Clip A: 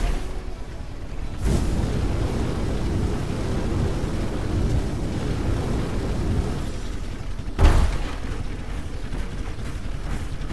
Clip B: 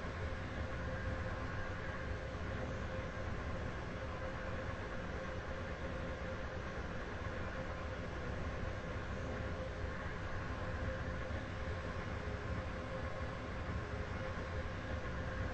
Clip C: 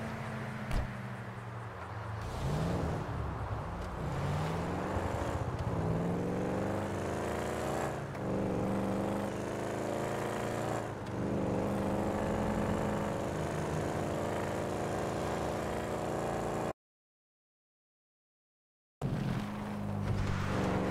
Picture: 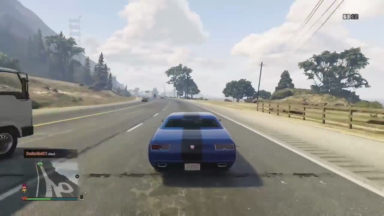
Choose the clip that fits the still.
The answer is C